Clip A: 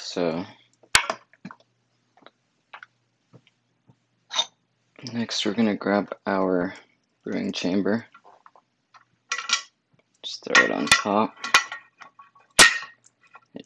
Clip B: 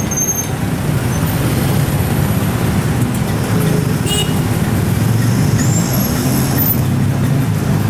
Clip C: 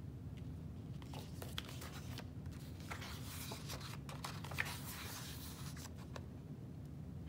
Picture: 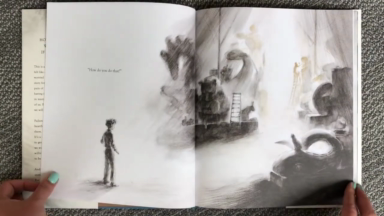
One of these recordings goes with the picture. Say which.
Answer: C